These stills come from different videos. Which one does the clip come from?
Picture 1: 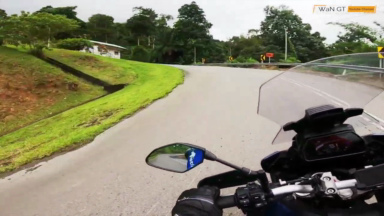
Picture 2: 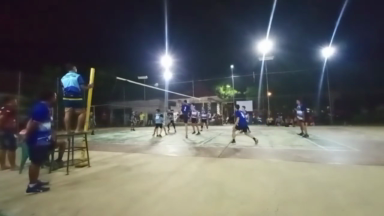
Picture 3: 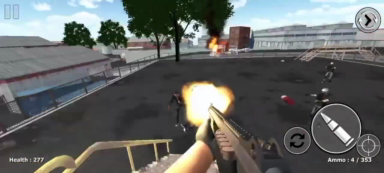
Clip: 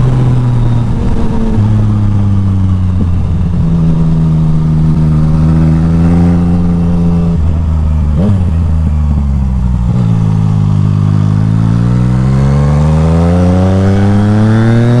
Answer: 1